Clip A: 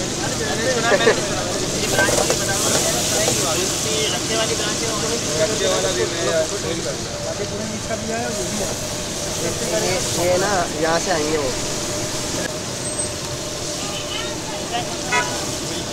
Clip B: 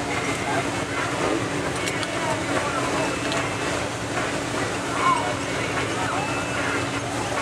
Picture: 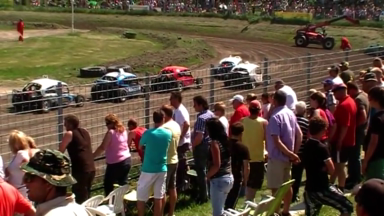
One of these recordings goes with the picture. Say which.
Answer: B